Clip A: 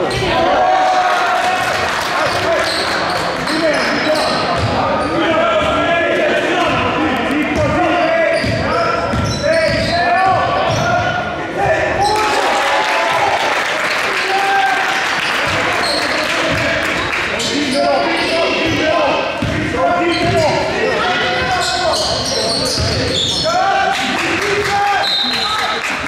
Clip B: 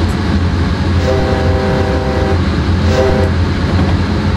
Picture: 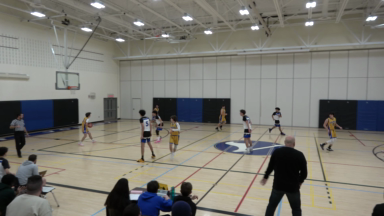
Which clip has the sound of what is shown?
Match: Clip A